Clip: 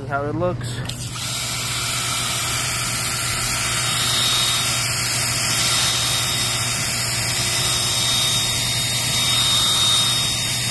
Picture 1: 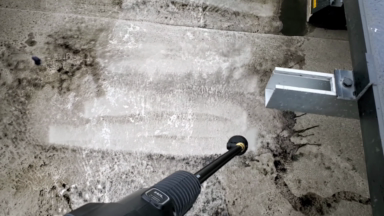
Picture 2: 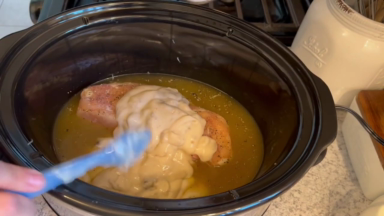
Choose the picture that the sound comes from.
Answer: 1